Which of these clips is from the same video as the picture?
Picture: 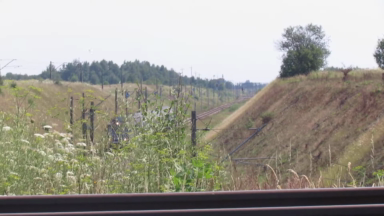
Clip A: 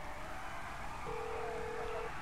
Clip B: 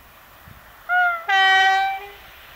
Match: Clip B